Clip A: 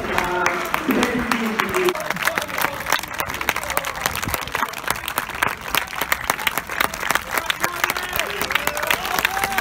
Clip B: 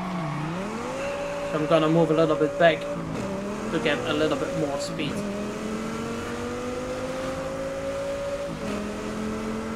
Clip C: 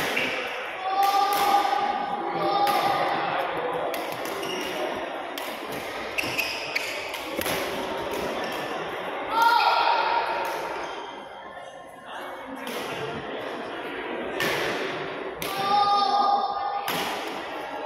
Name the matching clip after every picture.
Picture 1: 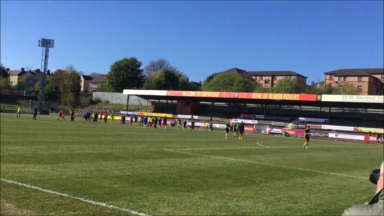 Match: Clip A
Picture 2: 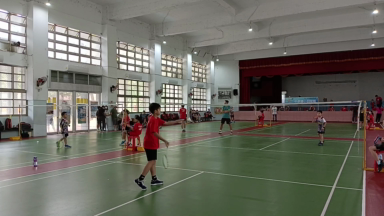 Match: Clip C